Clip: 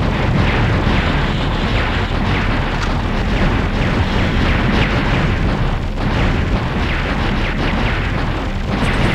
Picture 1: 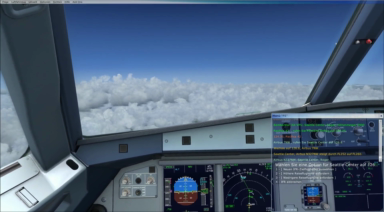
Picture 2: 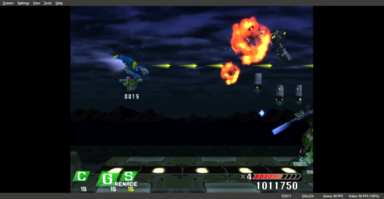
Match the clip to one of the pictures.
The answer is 2